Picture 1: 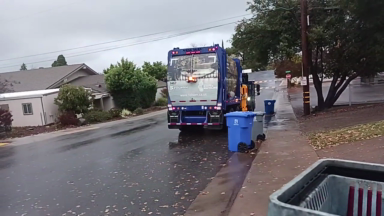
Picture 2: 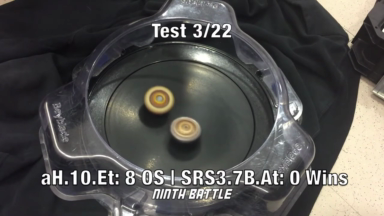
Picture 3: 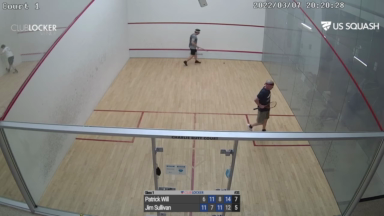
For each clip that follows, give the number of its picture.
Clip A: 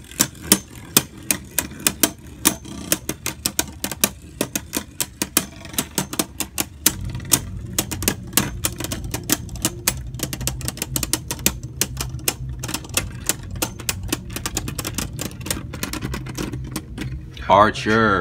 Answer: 2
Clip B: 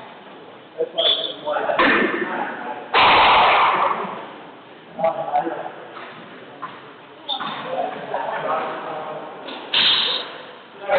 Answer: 3